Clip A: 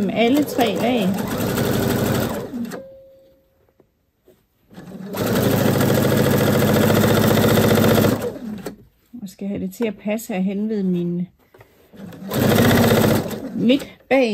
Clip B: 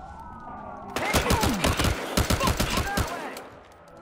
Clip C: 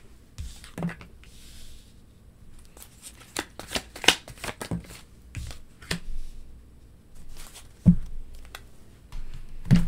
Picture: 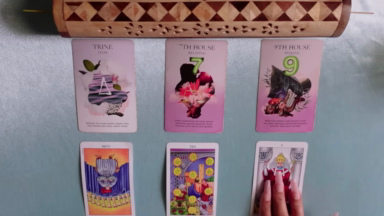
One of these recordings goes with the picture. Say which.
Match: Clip C